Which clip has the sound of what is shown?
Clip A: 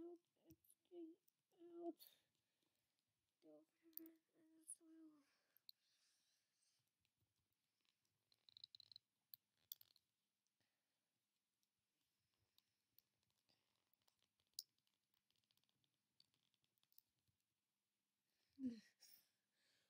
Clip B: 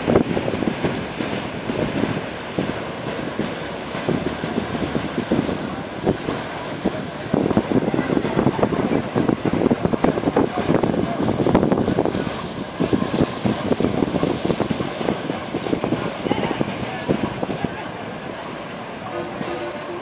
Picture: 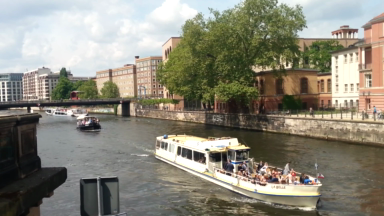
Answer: B